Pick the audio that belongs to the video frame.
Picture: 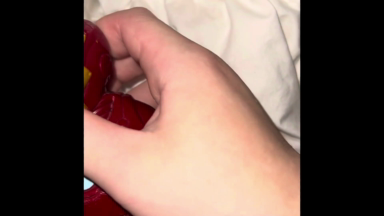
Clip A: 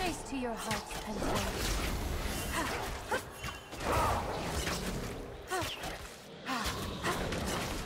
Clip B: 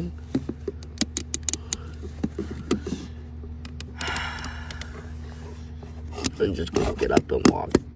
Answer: B